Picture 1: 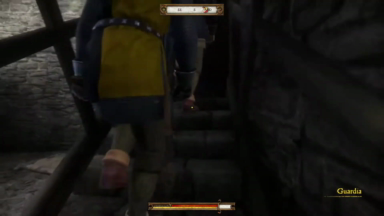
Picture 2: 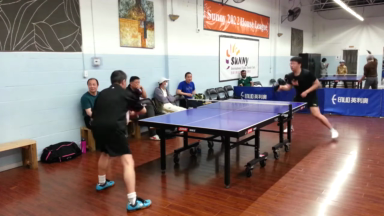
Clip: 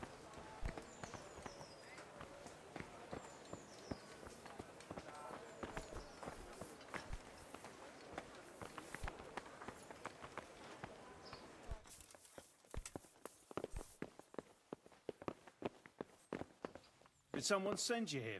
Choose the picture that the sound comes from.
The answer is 1